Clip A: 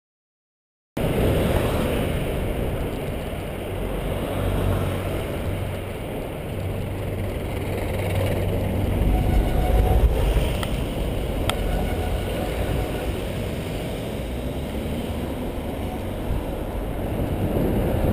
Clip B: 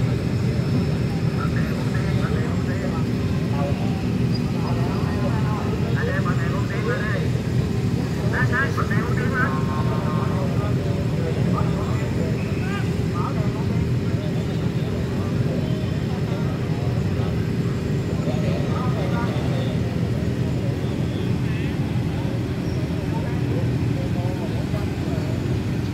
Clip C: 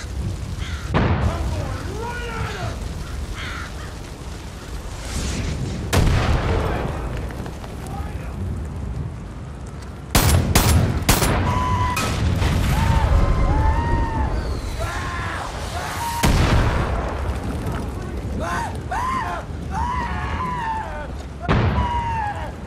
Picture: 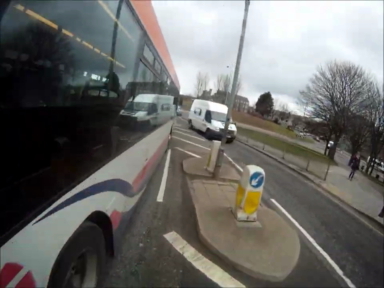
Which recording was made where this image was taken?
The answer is A